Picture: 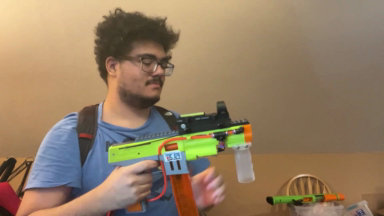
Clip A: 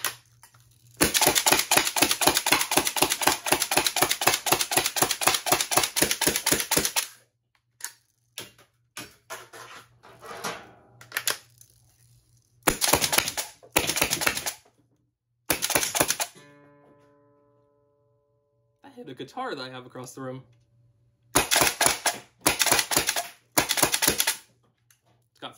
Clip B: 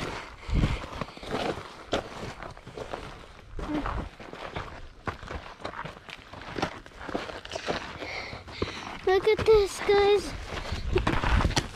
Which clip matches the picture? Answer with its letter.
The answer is A